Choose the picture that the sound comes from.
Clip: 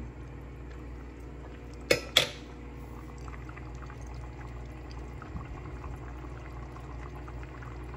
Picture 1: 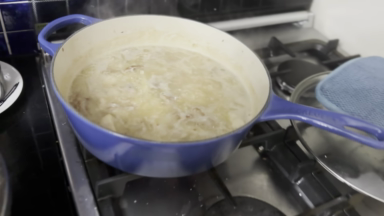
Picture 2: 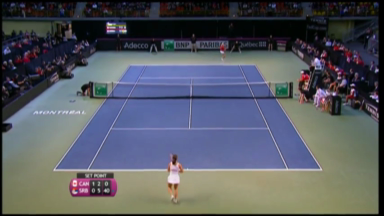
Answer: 1